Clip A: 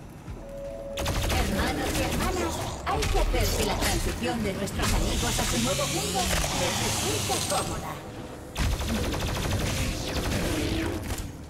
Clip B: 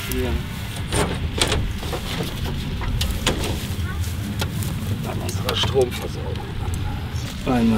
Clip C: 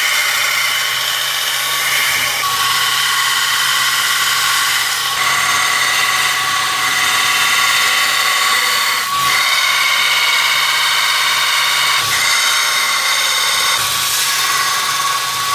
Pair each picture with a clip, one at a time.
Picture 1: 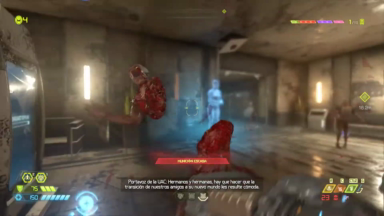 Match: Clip A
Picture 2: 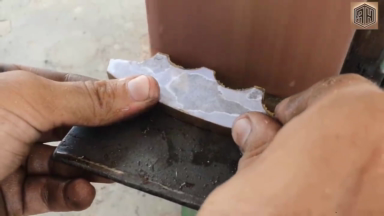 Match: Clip C